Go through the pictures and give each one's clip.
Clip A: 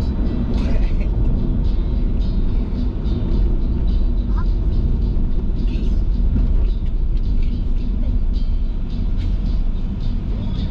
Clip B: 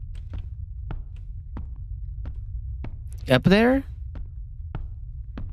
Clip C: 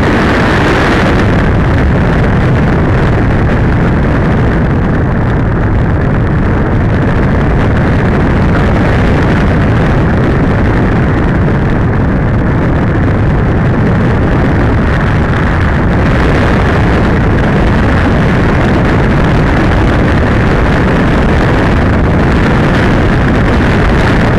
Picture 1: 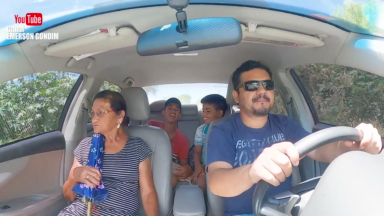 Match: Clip A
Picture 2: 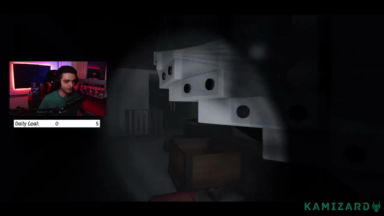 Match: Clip B